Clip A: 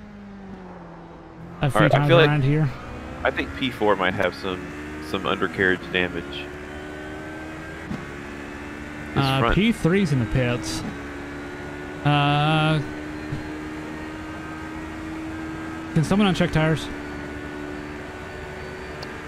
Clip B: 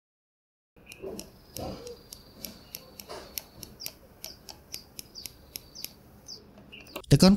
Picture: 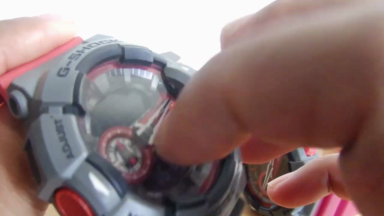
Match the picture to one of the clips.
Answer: B